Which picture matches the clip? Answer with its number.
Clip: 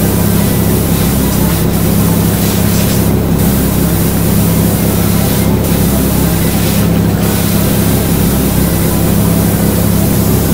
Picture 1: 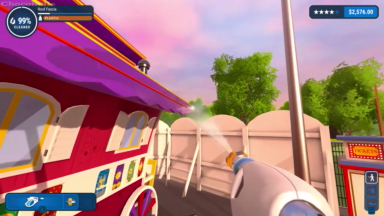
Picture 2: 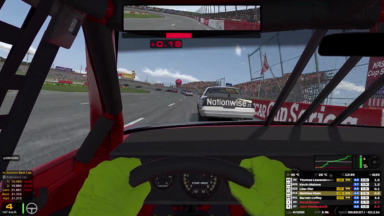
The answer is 1